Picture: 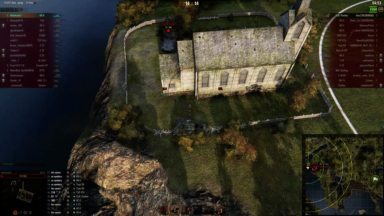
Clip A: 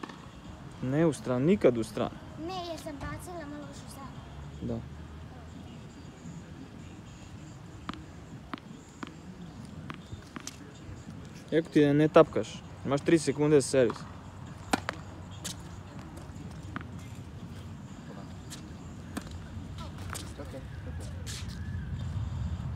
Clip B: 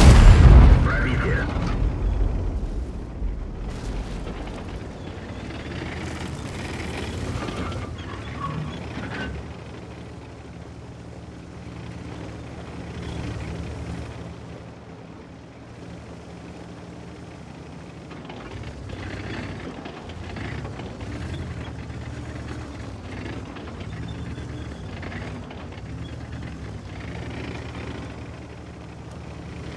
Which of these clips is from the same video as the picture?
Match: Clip B